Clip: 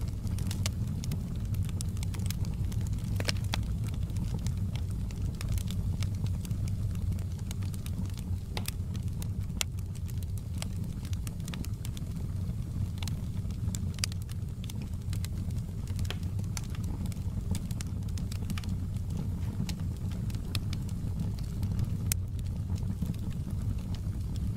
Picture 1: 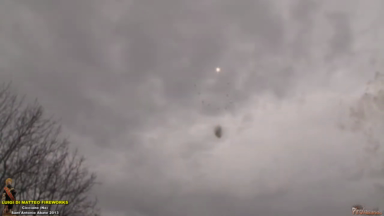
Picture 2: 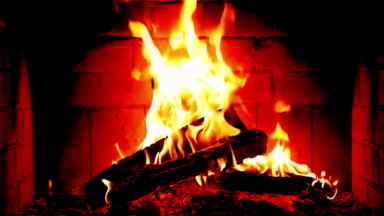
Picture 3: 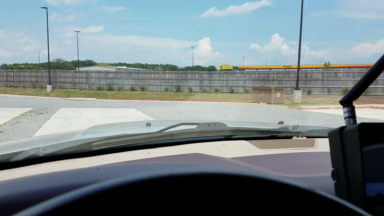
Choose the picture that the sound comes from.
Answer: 2